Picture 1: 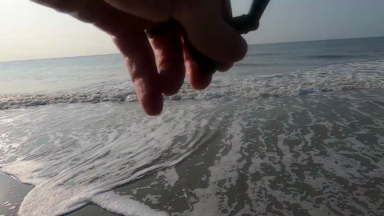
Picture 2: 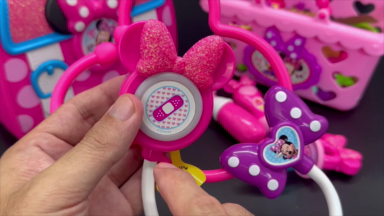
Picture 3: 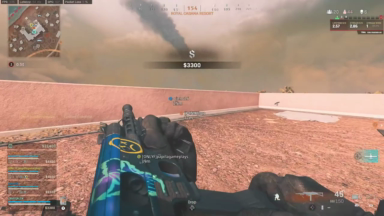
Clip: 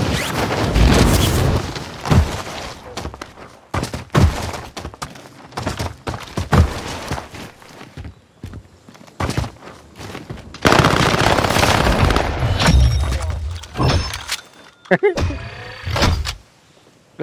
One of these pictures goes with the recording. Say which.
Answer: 3